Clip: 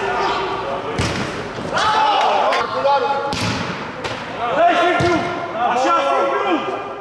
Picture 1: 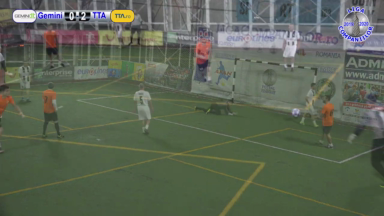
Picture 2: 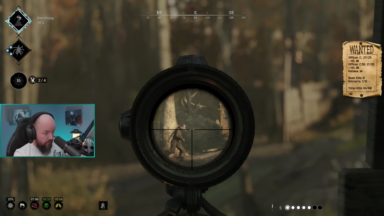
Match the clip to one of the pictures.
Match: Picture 1